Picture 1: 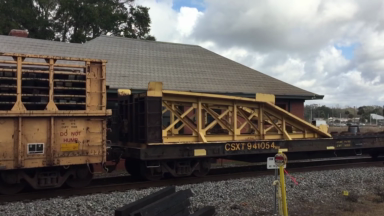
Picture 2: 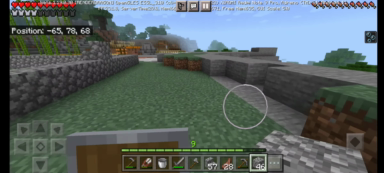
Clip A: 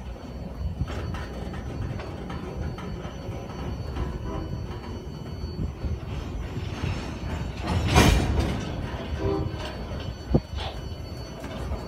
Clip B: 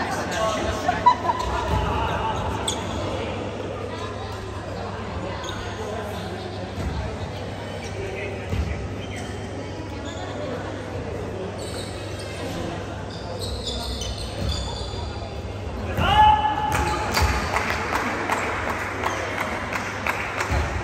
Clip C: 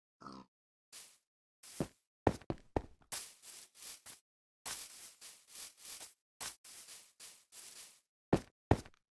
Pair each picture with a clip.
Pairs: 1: A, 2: C